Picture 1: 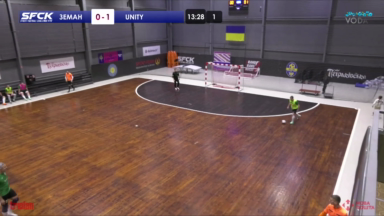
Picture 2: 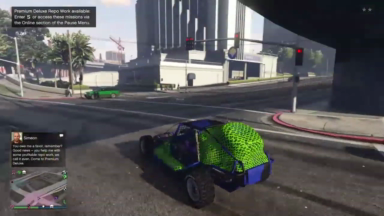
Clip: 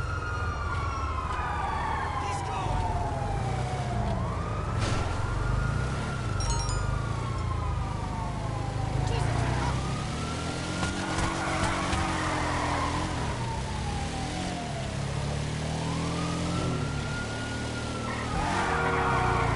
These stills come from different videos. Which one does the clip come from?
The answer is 2